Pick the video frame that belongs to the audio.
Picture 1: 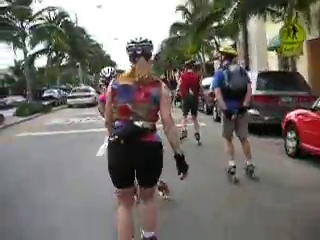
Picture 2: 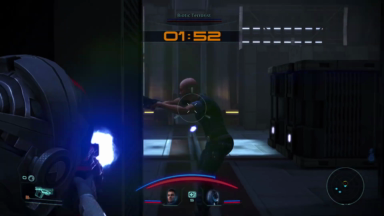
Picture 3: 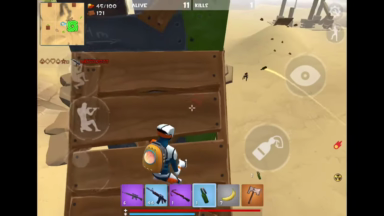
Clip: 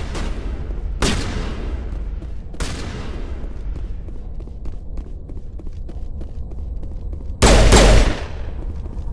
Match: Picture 2